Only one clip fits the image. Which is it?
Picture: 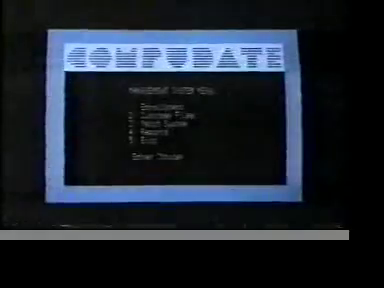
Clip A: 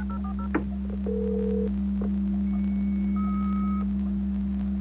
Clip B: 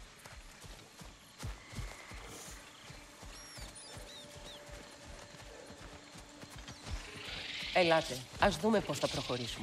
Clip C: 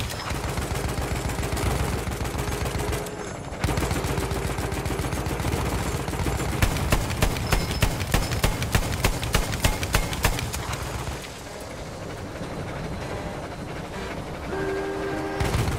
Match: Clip A